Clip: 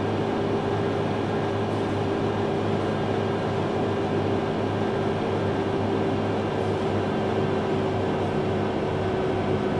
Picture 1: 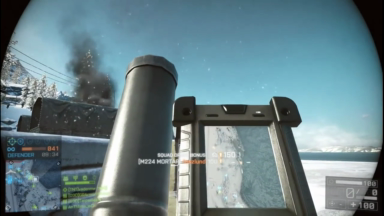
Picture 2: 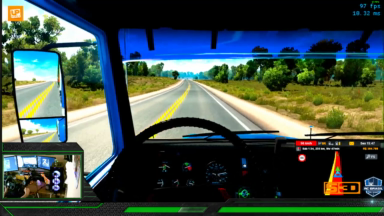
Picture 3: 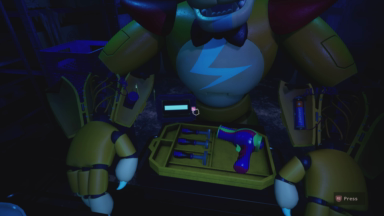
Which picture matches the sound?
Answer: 2